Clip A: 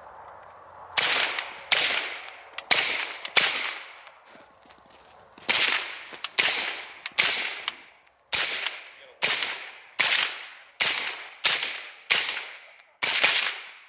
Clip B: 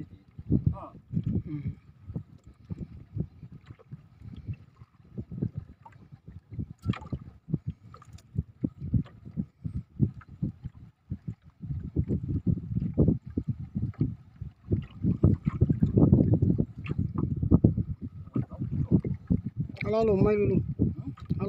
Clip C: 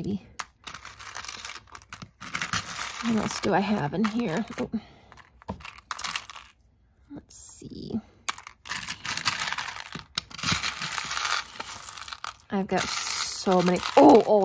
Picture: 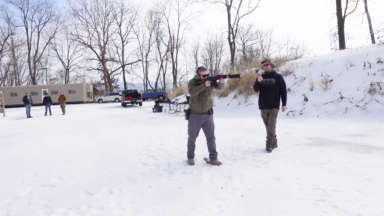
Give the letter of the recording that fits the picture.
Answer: A